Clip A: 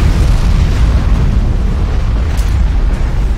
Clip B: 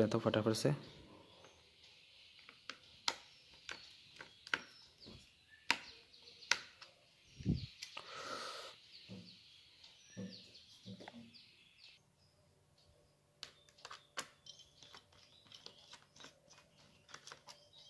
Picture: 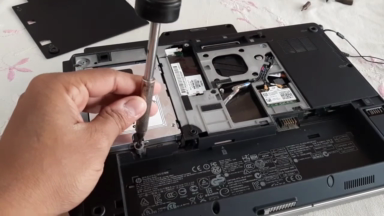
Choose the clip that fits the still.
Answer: B